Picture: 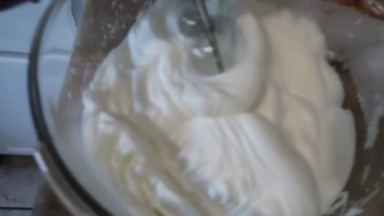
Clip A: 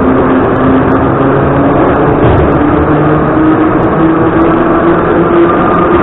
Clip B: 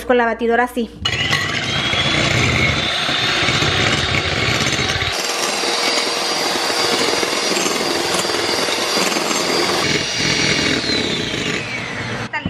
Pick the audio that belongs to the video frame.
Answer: B